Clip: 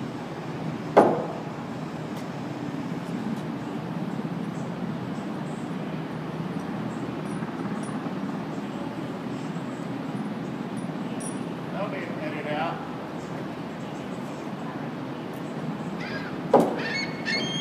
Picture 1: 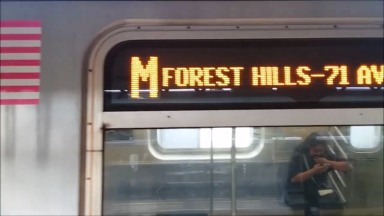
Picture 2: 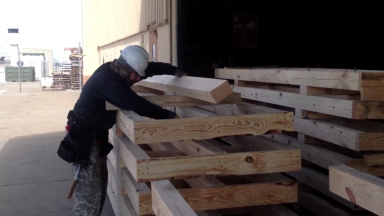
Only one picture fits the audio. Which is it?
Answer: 2